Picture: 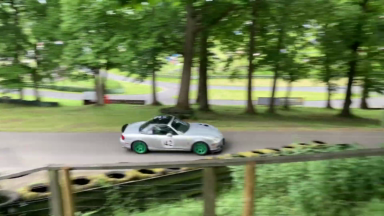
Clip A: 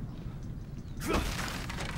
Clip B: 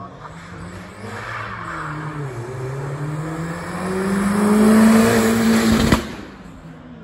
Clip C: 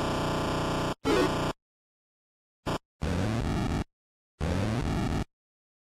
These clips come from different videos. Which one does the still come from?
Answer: B